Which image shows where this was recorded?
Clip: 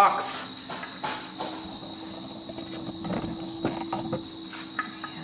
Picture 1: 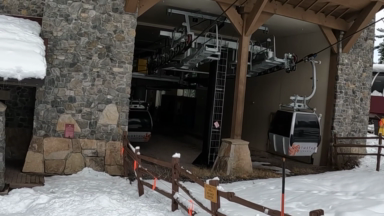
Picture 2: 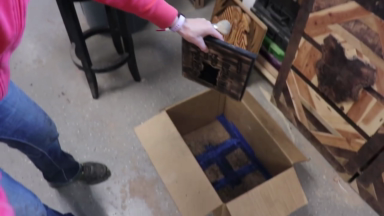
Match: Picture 2